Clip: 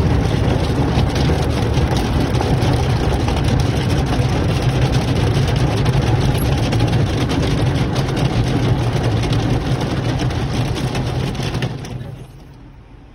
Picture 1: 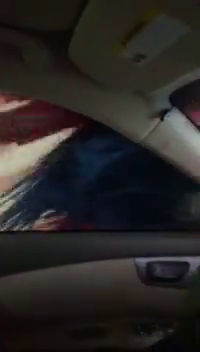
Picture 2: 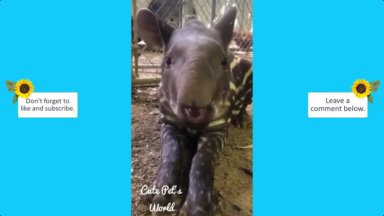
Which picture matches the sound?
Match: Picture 1